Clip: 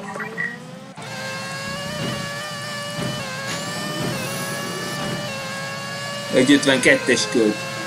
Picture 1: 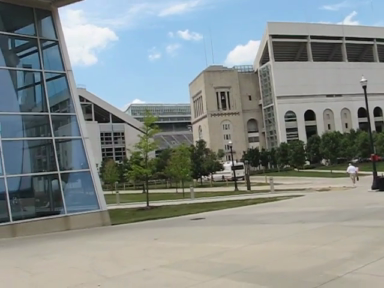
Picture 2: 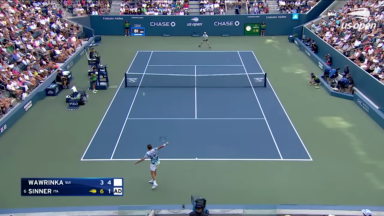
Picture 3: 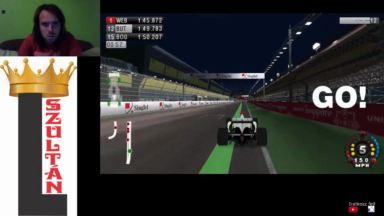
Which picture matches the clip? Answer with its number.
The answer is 3